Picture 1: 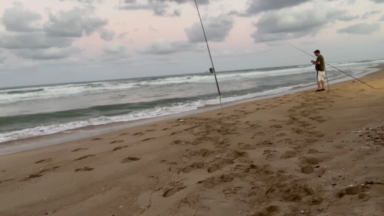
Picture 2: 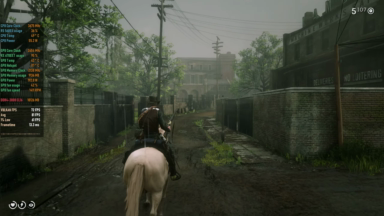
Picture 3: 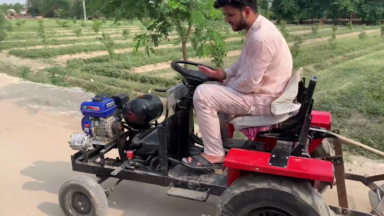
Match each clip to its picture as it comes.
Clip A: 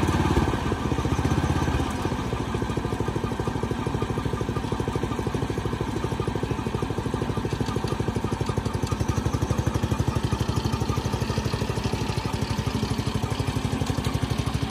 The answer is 3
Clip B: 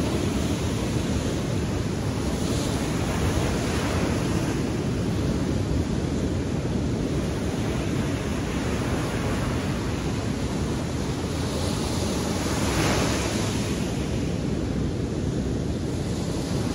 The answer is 1